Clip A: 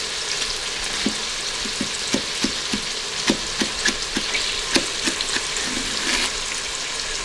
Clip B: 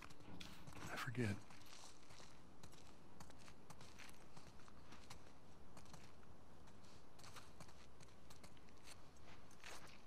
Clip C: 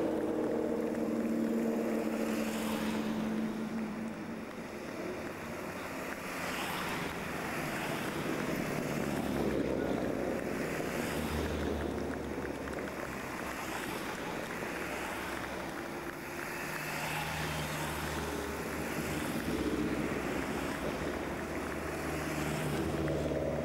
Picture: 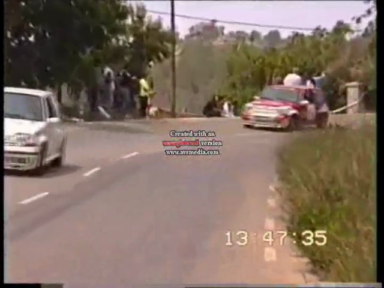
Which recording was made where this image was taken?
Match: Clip C